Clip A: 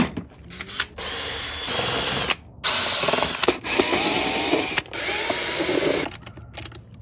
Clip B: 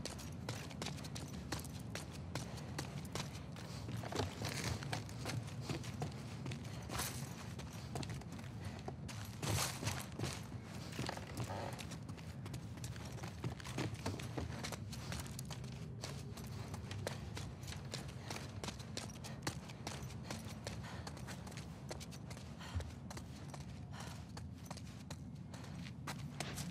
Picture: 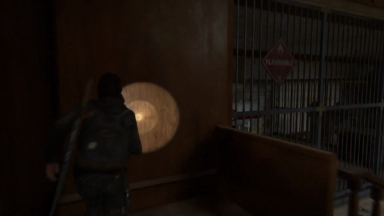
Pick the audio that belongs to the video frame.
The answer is B